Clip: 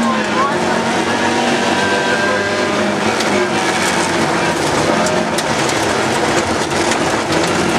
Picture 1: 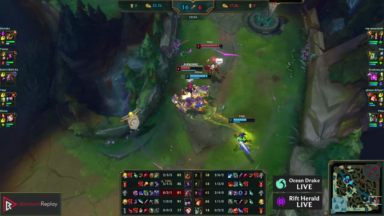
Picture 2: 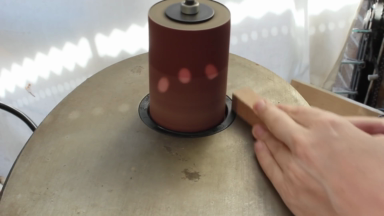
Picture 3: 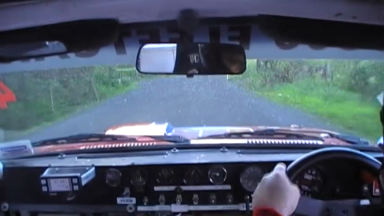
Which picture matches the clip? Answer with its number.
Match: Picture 3